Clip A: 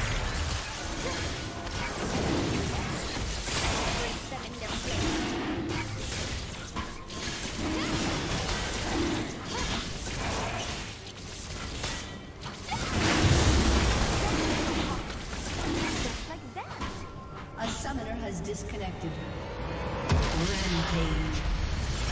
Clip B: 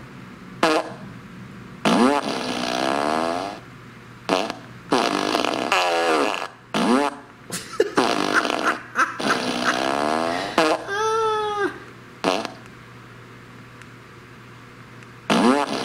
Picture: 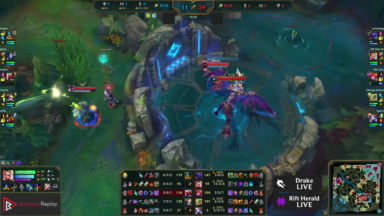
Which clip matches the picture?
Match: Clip A